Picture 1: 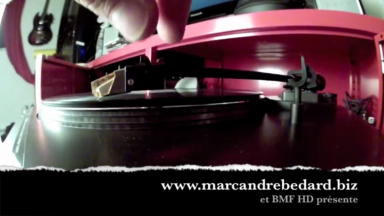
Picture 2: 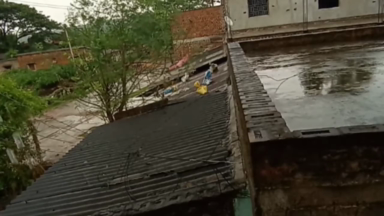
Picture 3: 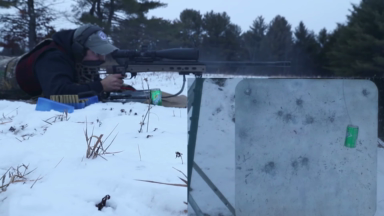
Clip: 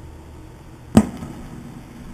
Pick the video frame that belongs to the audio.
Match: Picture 1